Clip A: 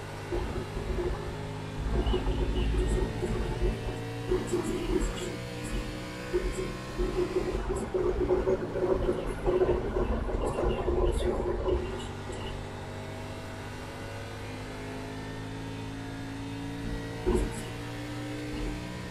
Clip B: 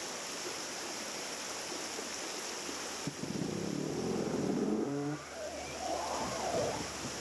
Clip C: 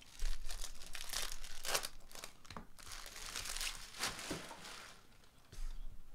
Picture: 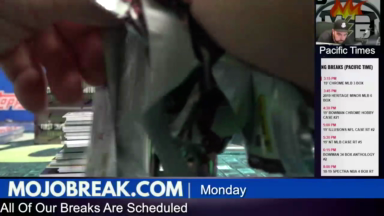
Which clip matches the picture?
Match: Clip C